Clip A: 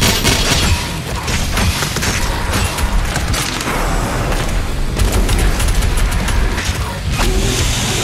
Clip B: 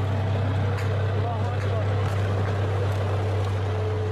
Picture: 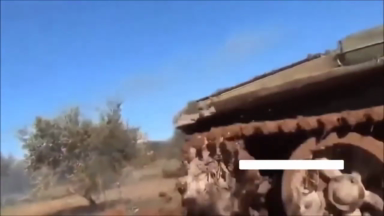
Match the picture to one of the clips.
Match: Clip B